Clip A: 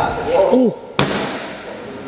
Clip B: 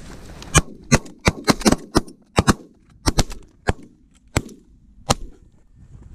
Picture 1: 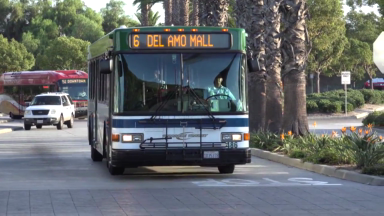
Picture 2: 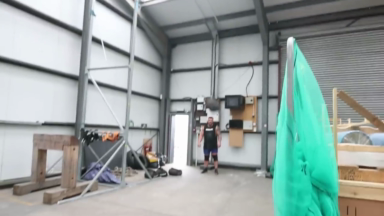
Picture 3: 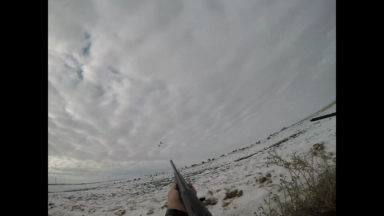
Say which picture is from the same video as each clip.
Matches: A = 2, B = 3